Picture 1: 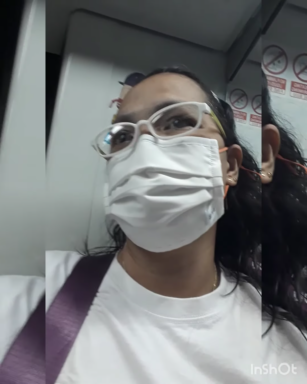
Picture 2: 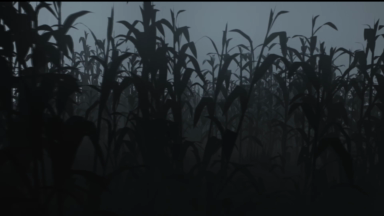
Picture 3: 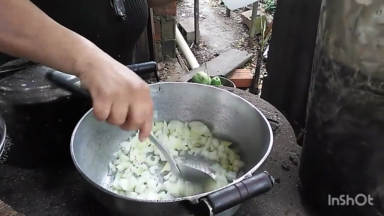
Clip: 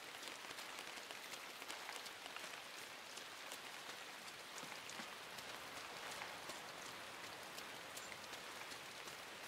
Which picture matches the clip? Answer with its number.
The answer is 2